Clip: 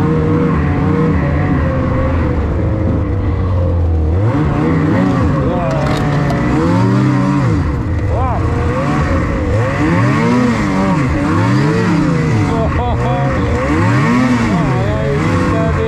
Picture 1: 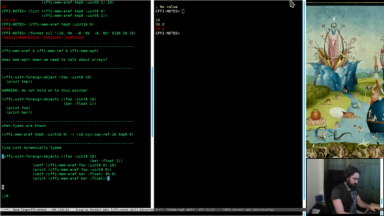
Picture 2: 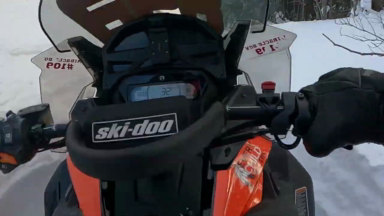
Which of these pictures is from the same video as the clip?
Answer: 2